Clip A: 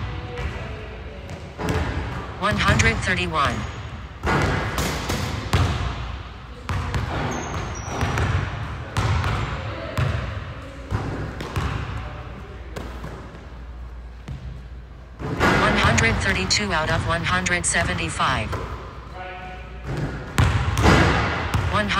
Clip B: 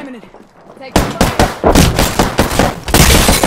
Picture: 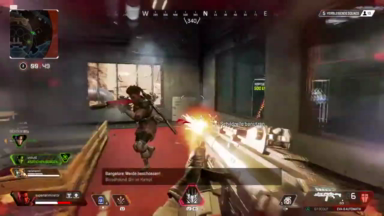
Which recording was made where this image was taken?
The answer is B